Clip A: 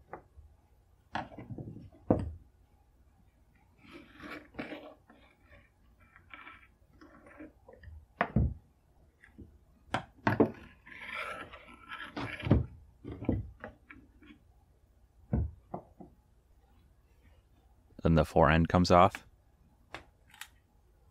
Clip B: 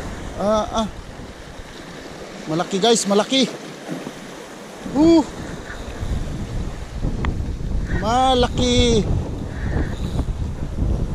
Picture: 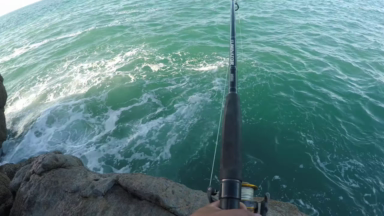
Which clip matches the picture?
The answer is B